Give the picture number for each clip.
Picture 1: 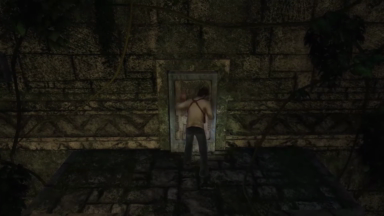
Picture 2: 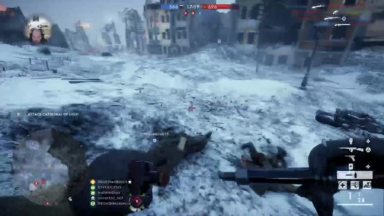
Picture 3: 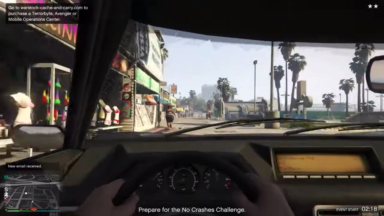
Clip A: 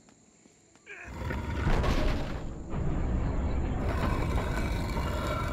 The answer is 1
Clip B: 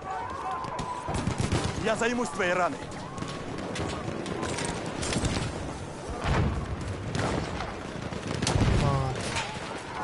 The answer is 2